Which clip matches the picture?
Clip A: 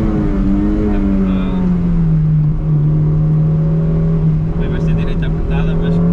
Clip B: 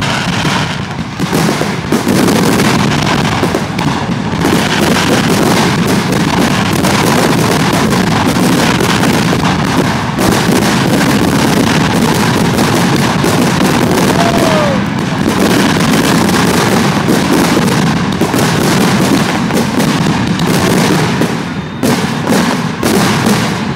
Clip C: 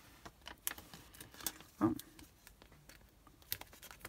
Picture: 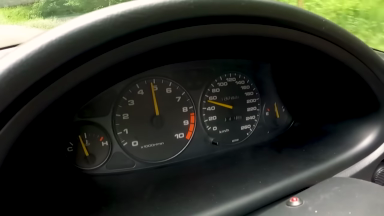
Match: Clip A